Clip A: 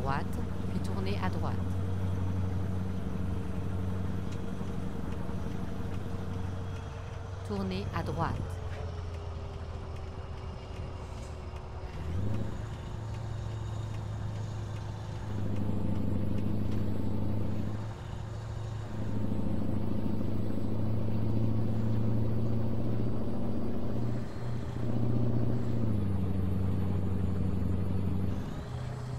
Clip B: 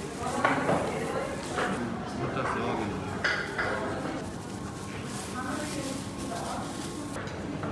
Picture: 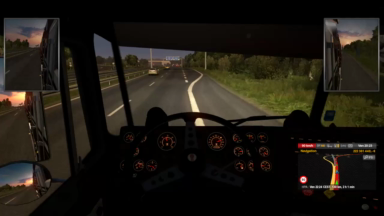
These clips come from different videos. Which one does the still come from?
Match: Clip A